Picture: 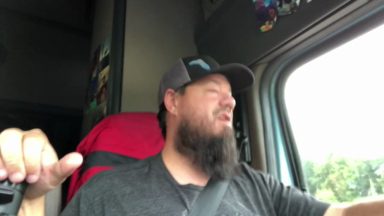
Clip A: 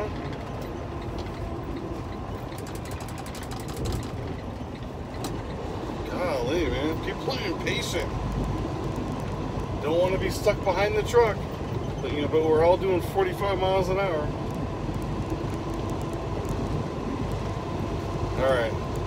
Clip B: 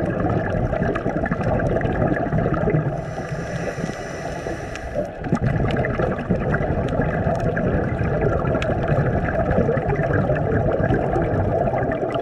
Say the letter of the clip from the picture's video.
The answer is A